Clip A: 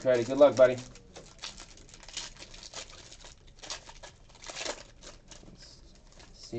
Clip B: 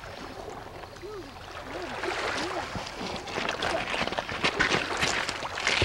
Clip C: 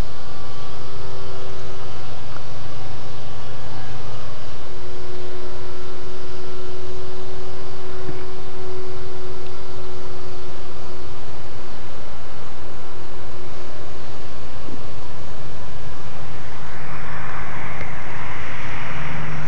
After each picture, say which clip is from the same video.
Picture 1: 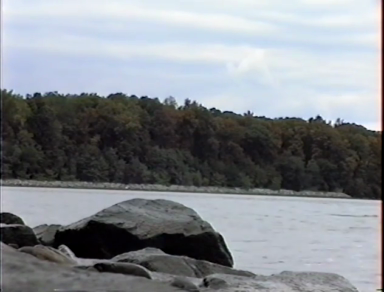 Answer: B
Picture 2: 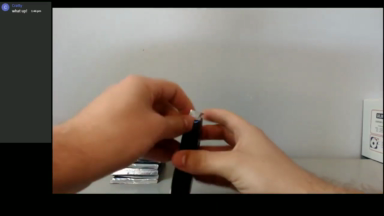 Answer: A